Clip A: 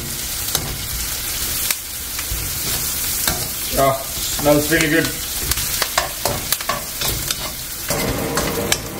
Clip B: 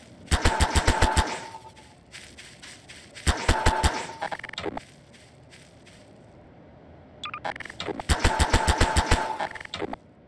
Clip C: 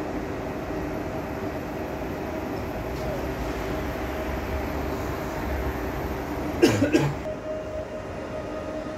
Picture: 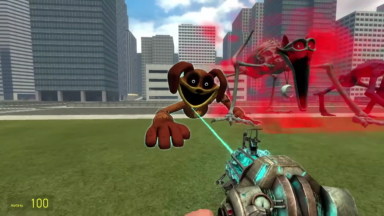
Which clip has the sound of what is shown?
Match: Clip B